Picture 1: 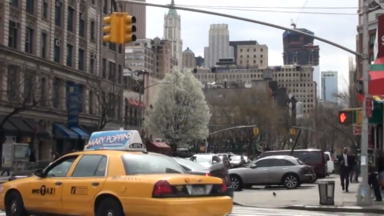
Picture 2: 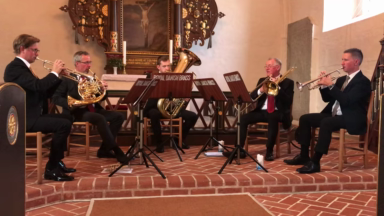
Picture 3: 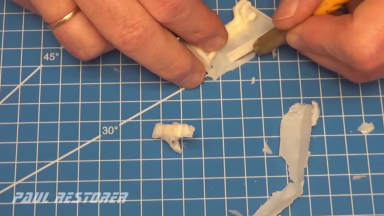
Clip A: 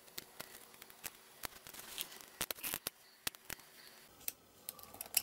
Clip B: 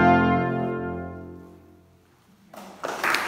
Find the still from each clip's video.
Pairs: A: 3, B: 2